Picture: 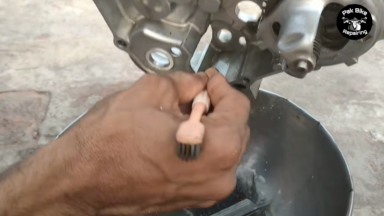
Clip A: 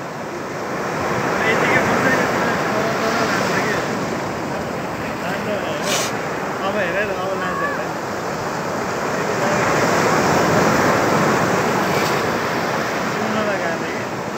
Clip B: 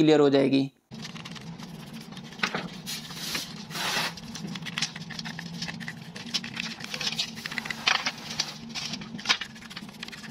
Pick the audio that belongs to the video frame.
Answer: B